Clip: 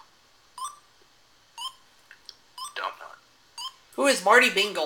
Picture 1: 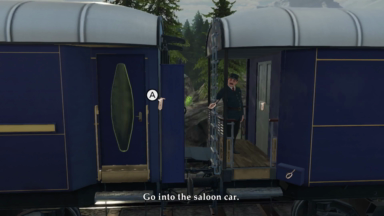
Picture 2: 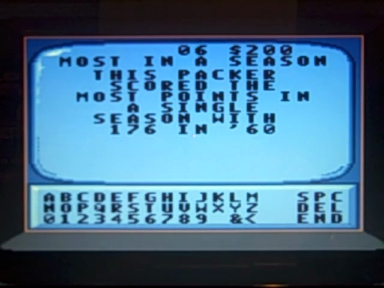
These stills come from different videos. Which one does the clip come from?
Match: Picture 2